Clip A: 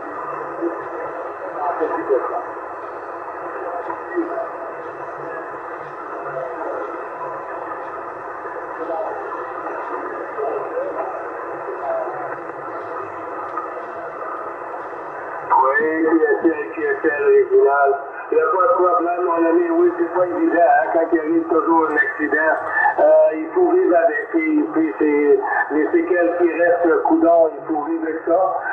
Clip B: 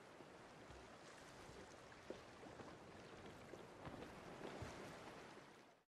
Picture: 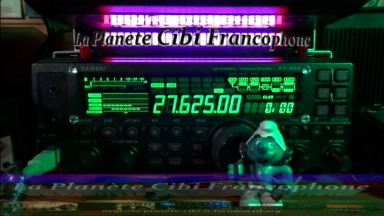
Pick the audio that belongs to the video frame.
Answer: A